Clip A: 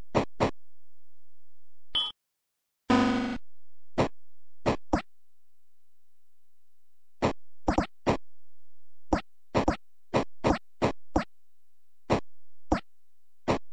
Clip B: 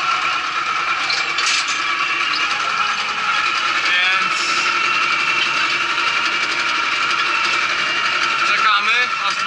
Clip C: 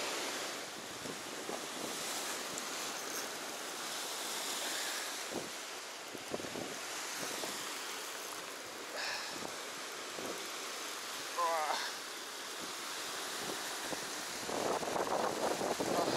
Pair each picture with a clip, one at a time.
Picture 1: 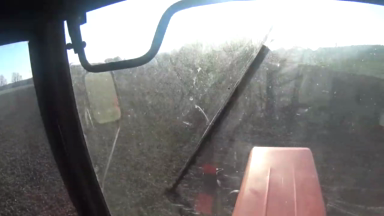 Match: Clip B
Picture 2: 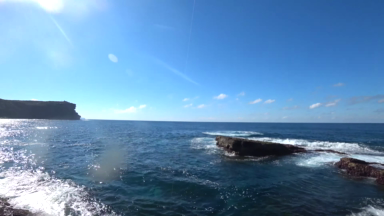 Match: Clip C